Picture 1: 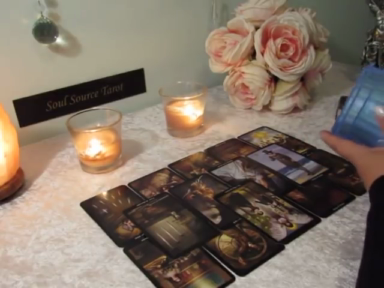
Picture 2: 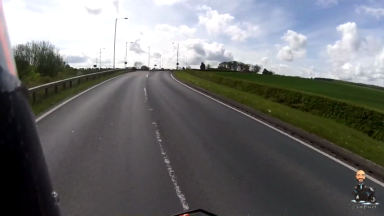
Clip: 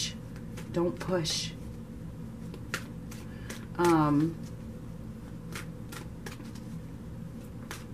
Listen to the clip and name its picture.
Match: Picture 1